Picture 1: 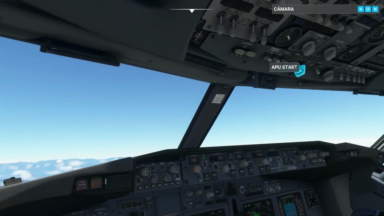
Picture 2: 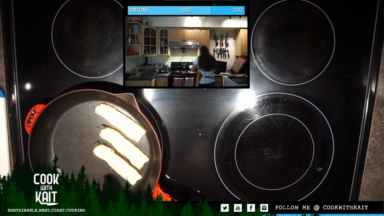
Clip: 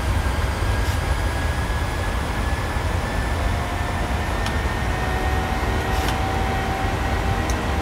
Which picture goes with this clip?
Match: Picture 1